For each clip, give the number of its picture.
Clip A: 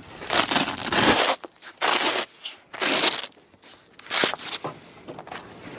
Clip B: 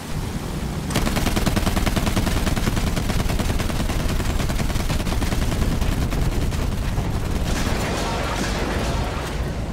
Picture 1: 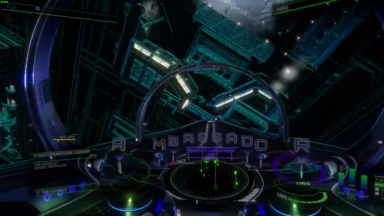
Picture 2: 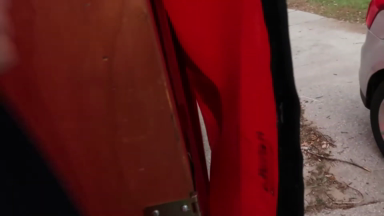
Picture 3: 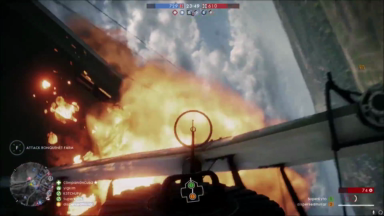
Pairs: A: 2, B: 3